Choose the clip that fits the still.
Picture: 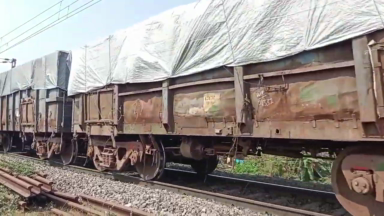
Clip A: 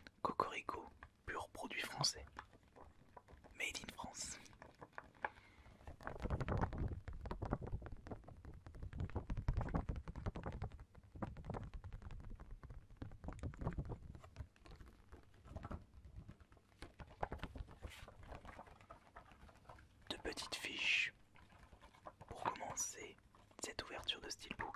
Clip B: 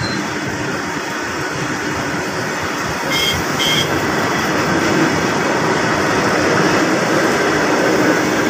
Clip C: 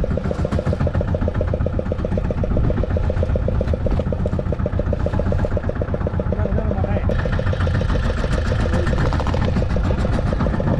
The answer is B